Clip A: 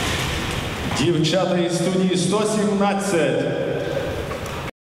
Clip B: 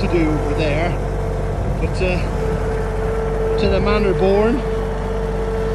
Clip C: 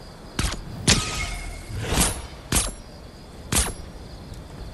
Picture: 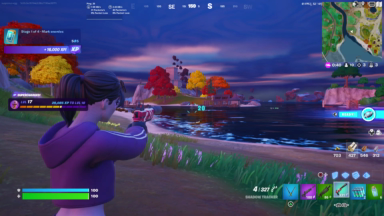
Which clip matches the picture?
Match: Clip C